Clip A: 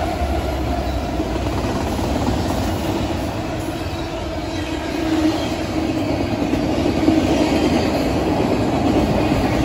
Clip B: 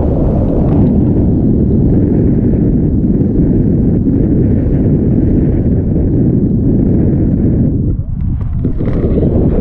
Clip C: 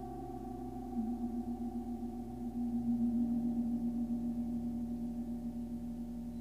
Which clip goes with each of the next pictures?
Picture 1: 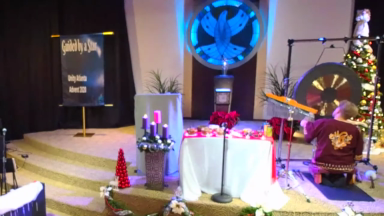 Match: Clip C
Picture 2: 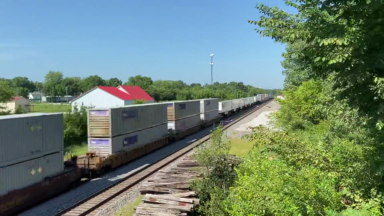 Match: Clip A